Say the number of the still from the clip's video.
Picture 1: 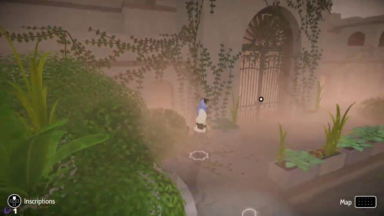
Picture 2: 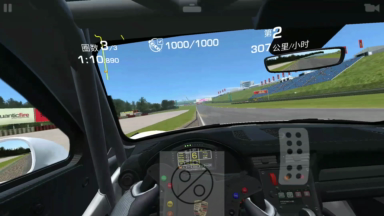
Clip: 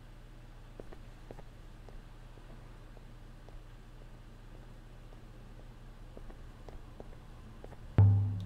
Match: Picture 1